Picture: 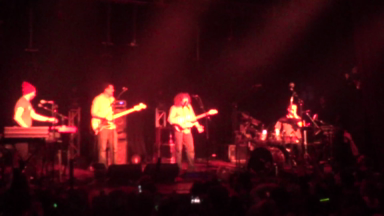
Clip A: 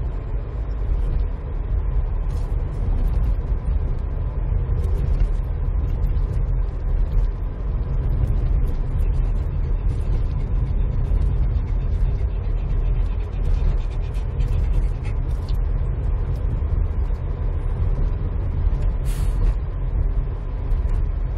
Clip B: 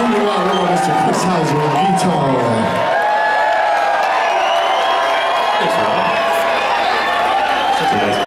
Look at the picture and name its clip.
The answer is B